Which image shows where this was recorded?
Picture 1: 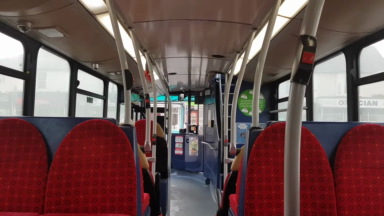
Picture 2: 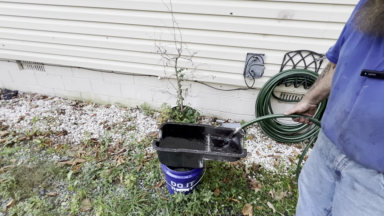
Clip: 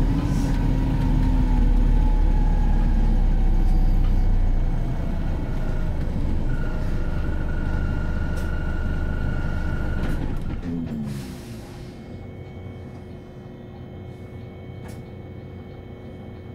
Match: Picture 1